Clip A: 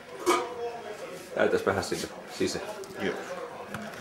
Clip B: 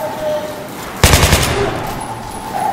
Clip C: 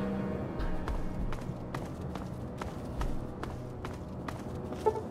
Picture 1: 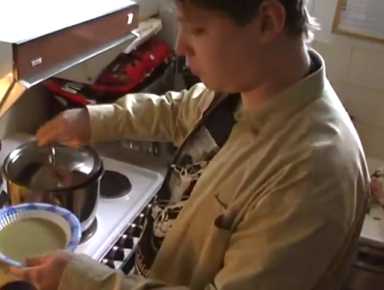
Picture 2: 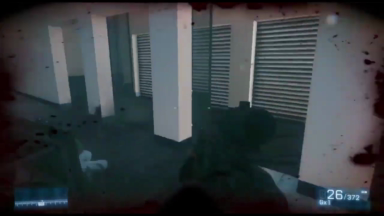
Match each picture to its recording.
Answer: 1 A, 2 B